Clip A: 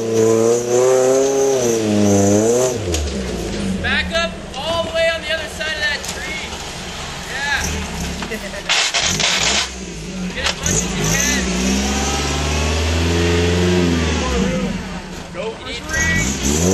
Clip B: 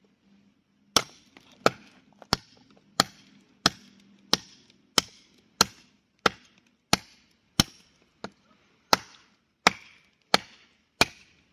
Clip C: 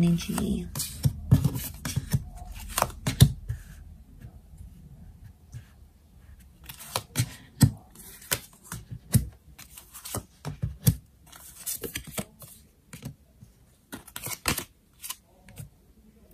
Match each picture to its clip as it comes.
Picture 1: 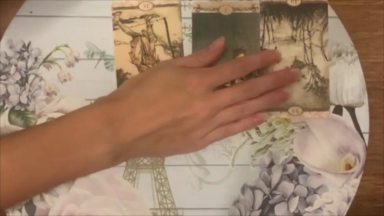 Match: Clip C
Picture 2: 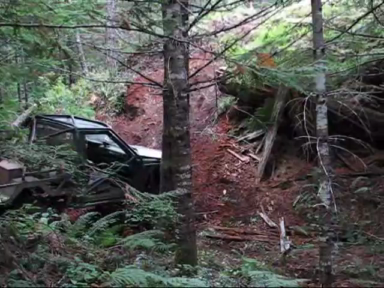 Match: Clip A